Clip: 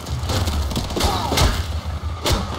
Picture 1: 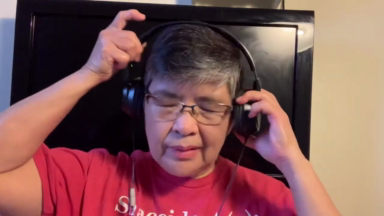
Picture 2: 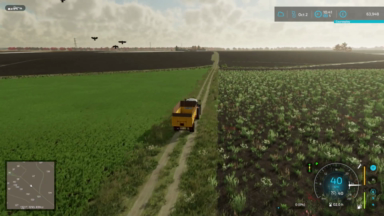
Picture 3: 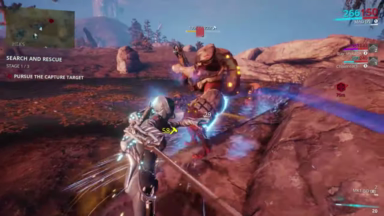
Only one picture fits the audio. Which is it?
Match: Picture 3